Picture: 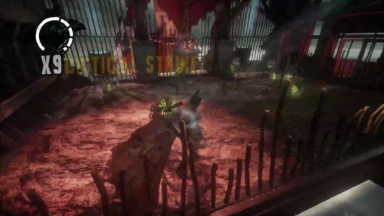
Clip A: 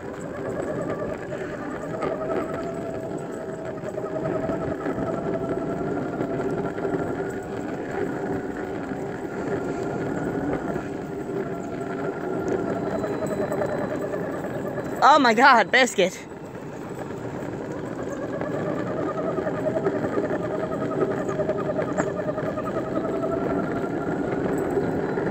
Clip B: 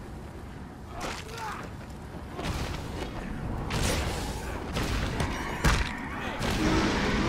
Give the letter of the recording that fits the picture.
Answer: B